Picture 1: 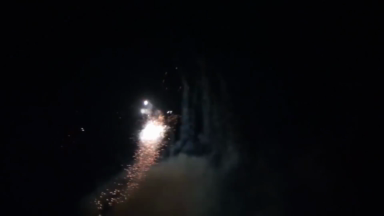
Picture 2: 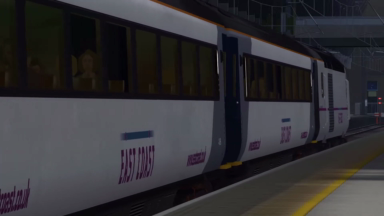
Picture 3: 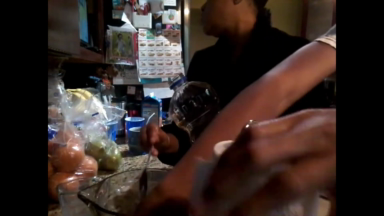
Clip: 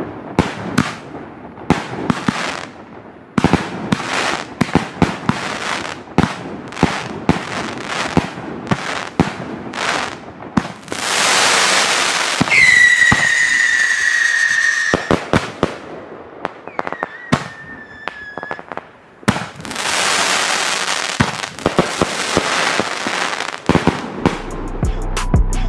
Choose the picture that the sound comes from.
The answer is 1